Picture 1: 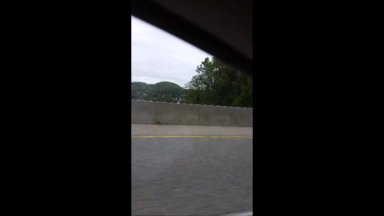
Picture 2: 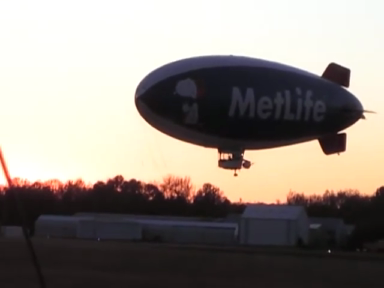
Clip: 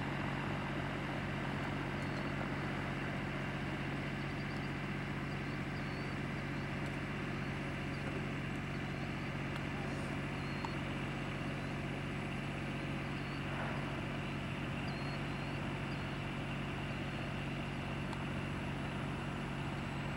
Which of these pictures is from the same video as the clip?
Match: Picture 2